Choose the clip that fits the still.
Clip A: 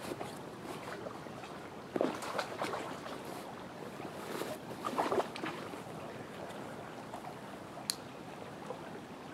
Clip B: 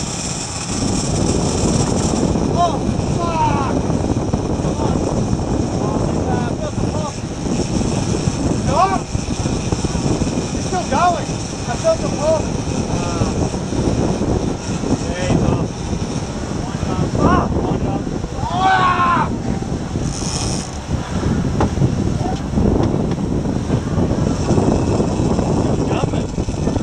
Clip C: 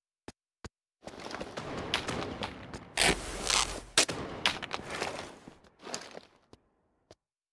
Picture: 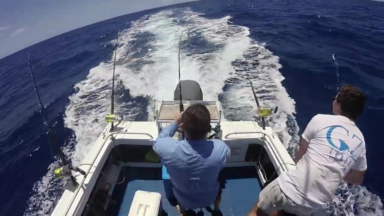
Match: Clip B